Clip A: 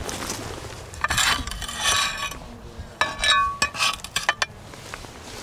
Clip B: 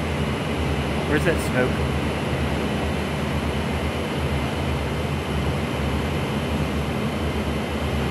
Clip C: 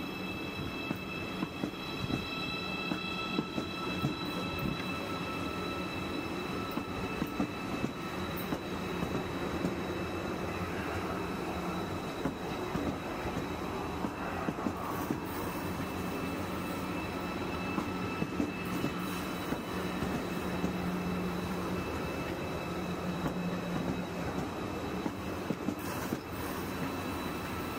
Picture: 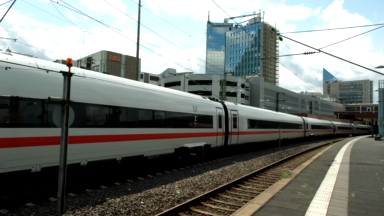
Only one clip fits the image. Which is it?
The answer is C